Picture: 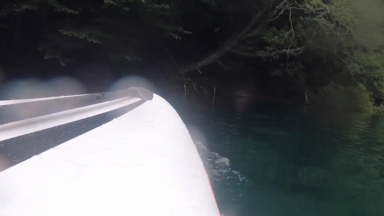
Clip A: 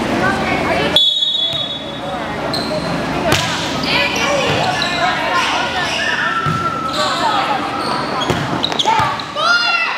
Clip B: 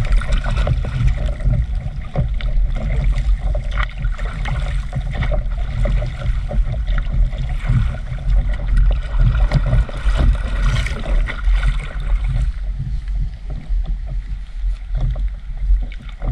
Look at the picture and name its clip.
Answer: B